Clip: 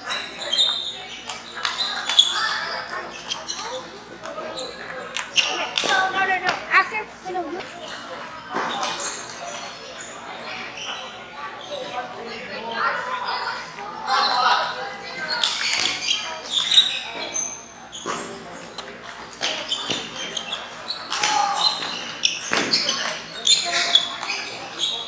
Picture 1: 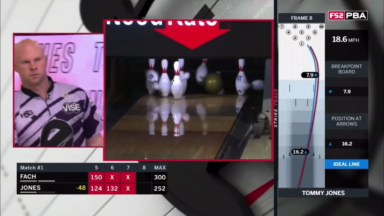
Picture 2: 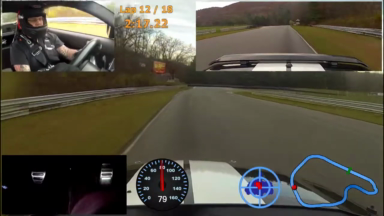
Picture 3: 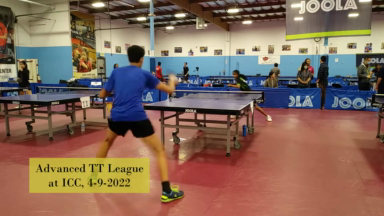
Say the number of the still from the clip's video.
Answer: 3